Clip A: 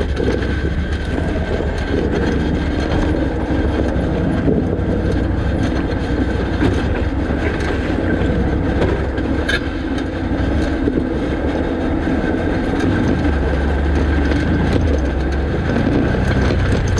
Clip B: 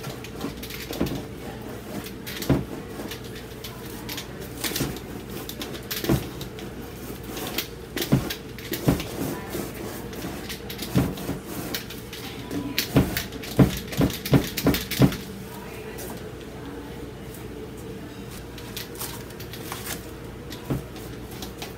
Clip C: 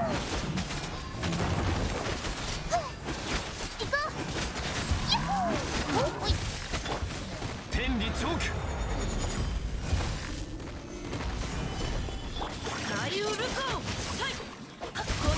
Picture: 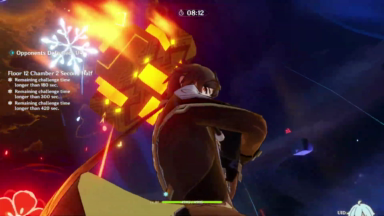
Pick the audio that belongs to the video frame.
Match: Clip C